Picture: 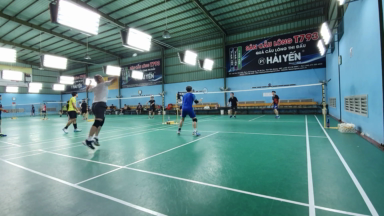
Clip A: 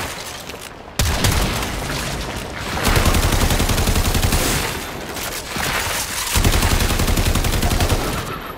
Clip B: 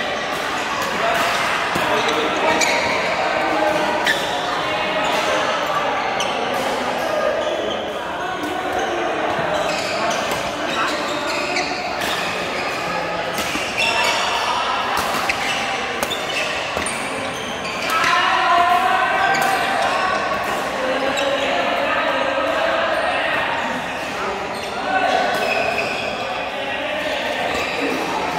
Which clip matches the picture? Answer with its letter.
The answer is B